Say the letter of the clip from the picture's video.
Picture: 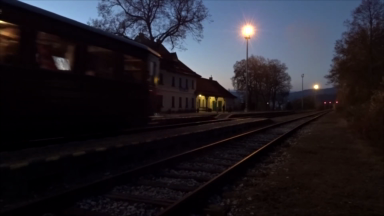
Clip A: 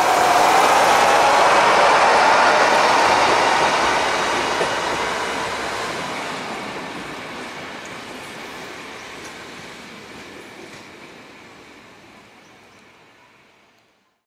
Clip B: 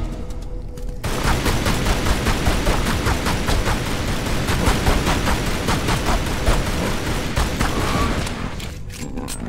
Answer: A